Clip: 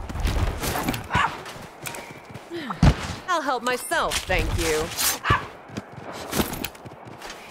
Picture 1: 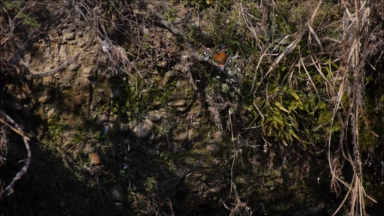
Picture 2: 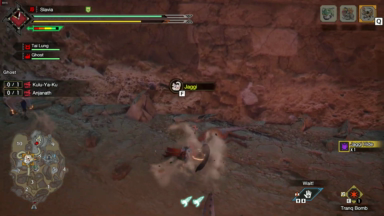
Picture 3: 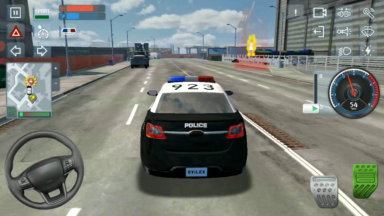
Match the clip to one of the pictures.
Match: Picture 2